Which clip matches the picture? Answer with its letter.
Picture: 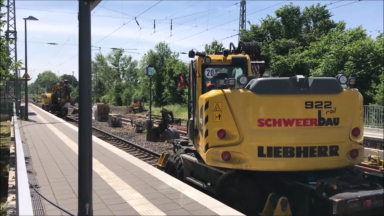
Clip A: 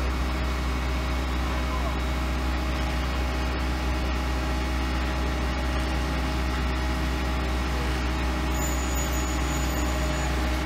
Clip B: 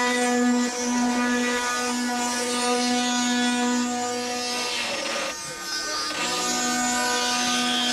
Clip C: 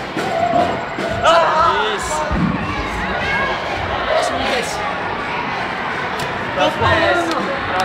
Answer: A